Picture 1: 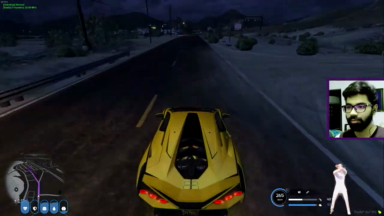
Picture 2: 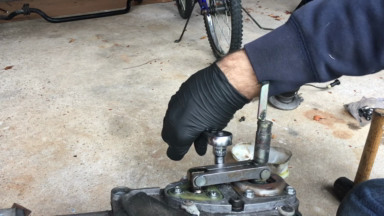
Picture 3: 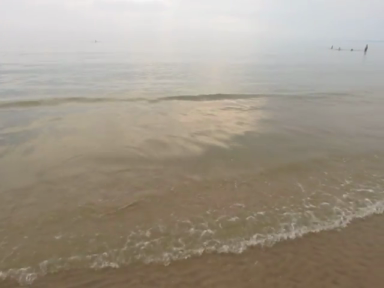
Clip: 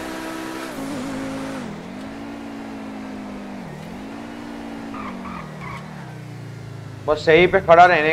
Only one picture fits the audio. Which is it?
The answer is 1